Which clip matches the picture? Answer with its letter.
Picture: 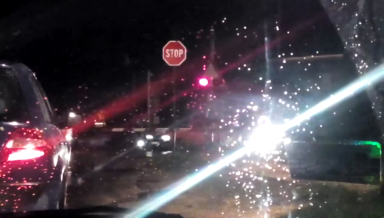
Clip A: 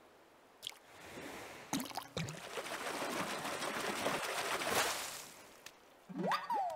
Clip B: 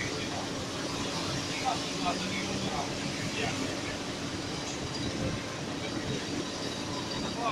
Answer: B